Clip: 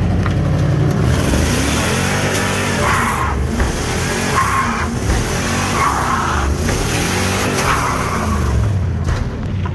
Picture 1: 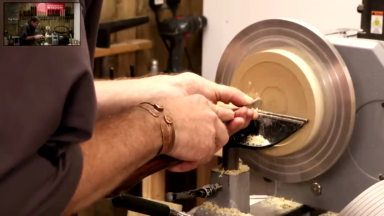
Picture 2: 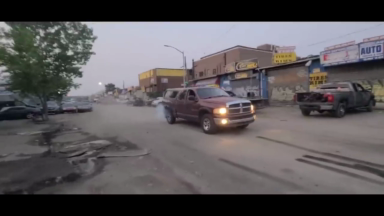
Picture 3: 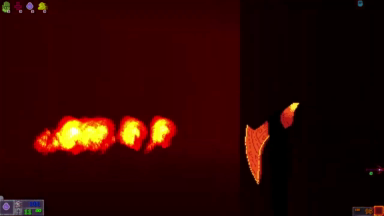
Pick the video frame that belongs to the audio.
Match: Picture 2